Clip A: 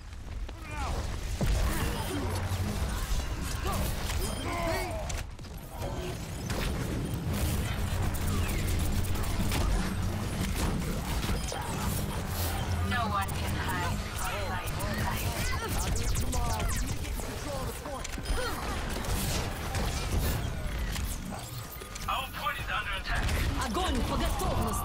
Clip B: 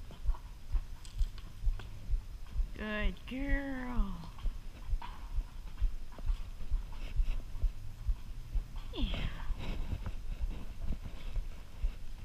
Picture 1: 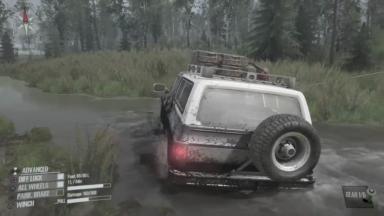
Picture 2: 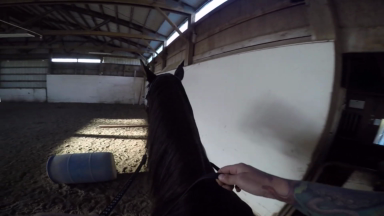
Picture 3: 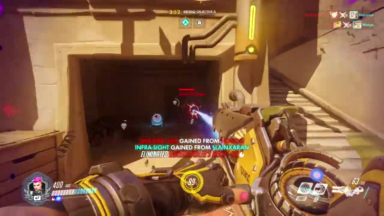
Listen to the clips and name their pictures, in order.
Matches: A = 3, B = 2